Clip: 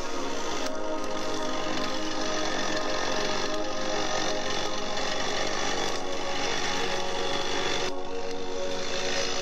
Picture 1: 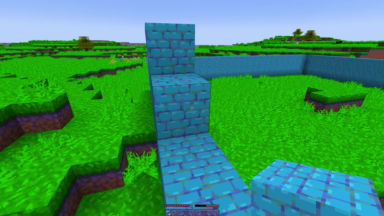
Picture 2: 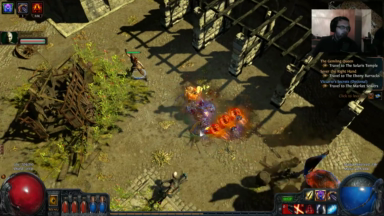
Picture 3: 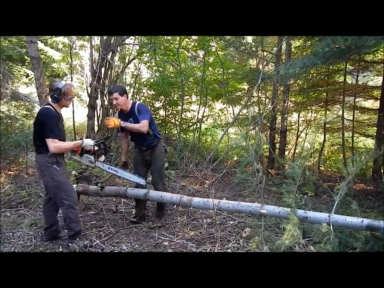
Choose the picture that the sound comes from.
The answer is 3